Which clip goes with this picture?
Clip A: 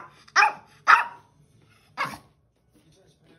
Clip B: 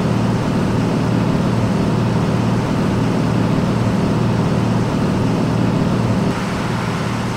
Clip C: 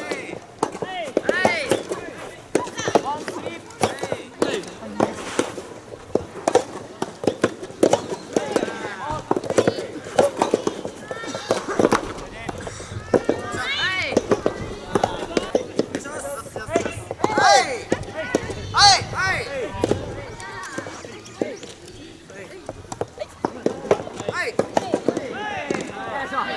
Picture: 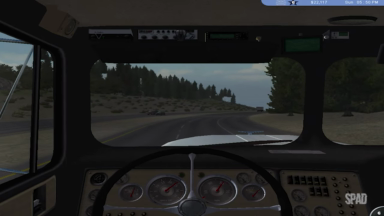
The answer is B